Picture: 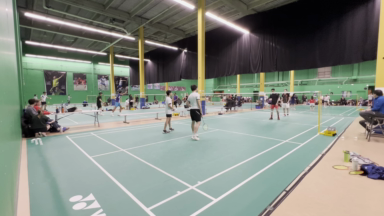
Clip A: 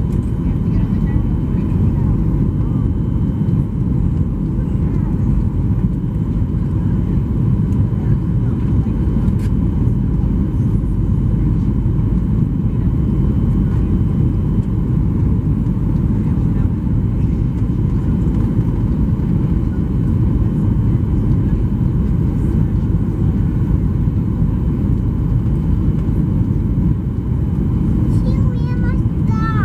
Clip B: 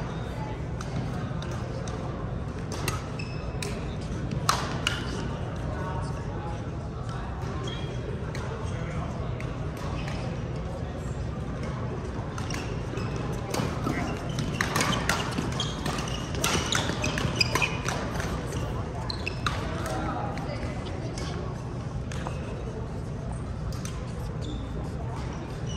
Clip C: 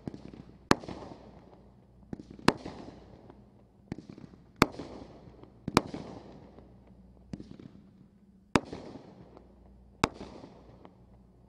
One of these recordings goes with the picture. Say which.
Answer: B